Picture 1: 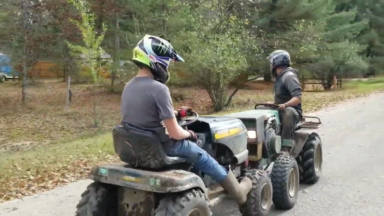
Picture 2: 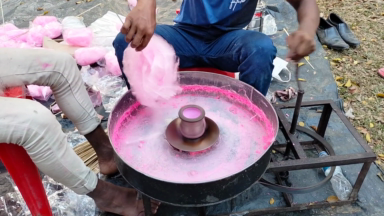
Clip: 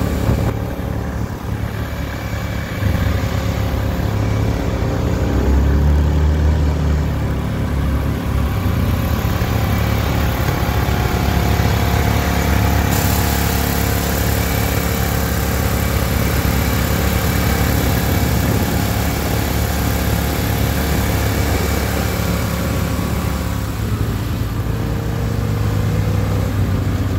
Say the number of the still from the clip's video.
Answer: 1